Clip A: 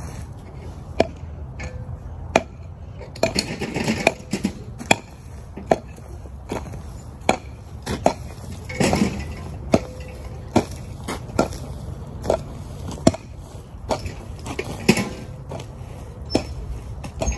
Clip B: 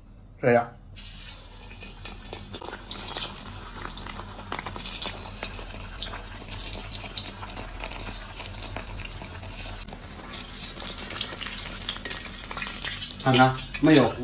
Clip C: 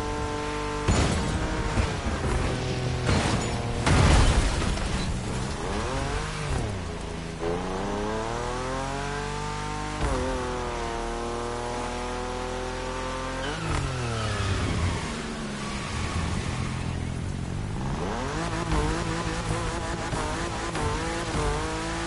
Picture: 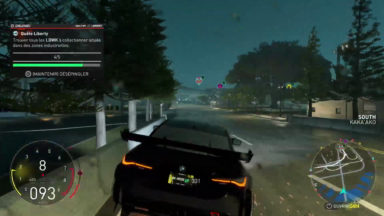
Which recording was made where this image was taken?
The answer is C